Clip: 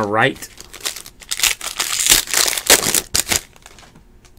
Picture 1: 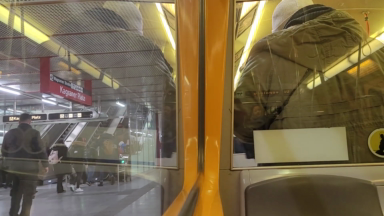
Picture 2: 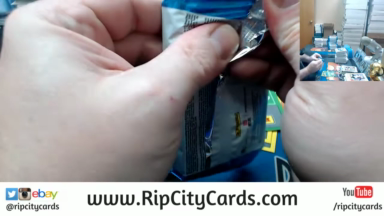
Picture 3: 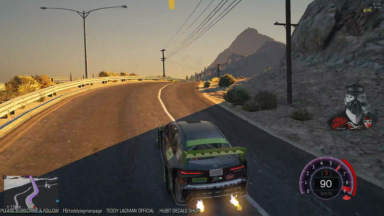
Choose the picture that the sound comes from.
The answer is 2